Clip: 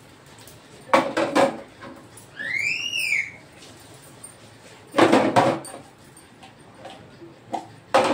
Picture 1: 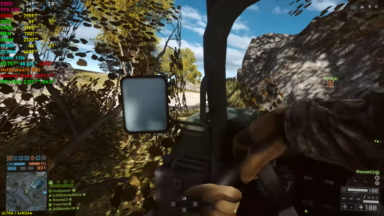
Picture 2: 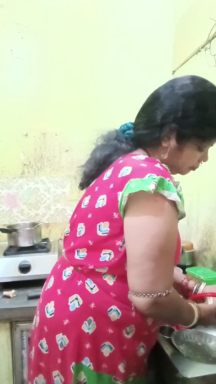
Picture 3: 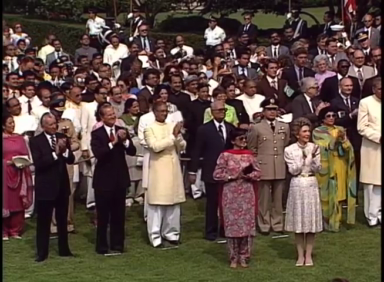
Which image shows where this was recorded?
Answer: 2